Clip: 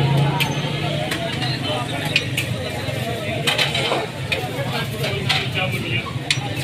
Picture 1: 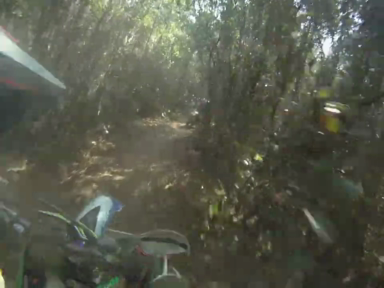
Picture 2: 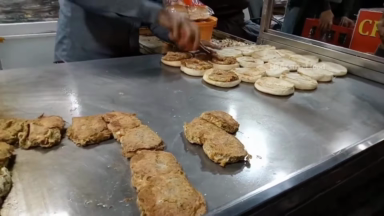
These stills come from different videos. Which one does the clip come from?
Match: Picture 2